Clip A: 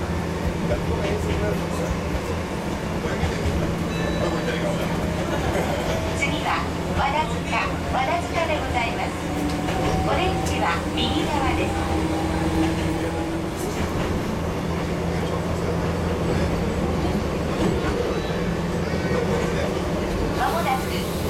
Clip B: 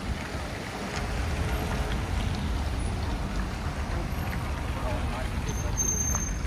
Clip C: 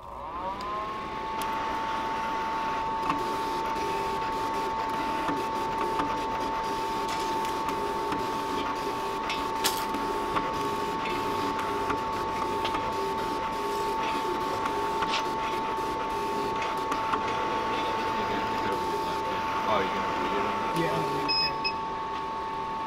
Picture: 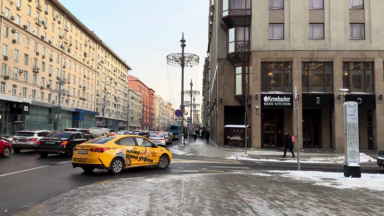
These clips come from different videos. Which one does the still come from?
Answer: B